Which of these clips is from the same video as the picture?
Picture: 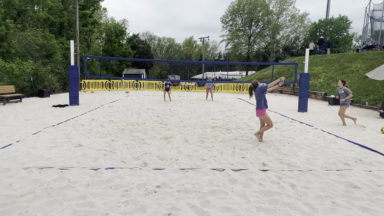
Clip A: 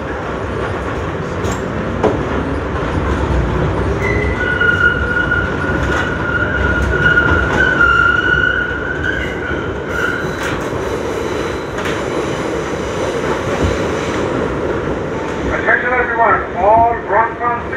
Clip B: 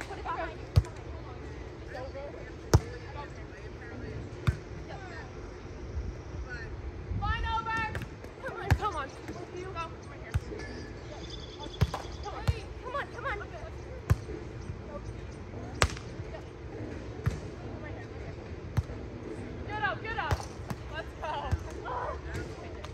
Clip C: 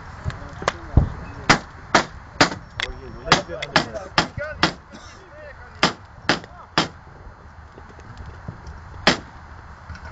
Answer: B